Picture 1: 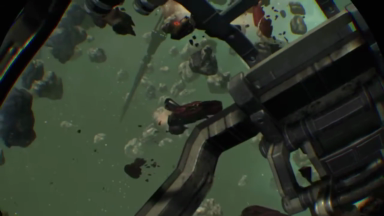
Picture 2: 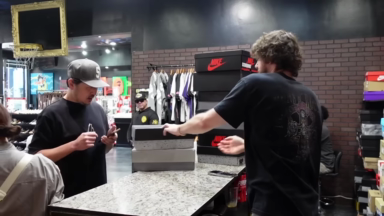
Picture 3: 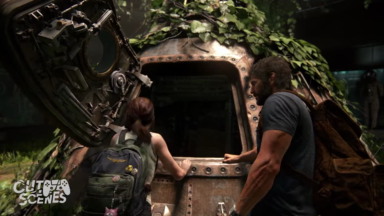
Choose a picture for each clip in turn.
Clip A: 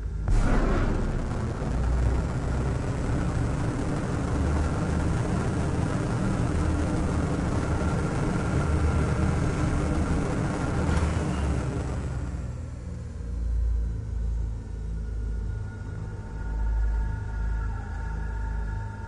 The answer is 1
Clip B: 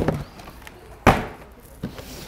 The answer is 2